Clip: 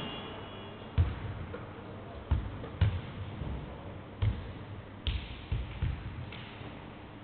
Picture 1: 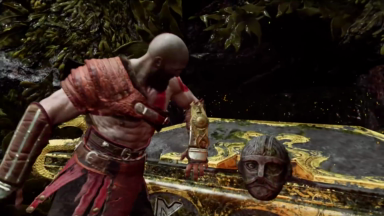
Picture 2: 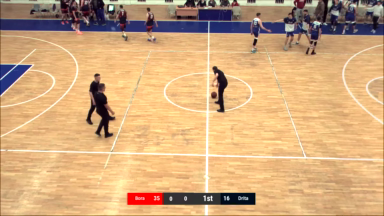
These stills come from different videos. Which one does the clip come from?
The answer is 2